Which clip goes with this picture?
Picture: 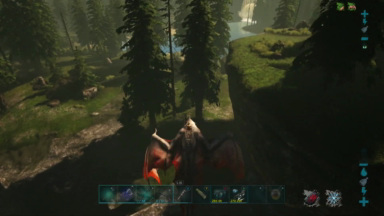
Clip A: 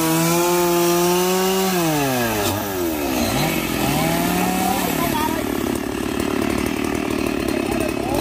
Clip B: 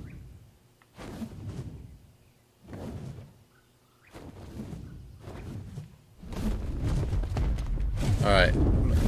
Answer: B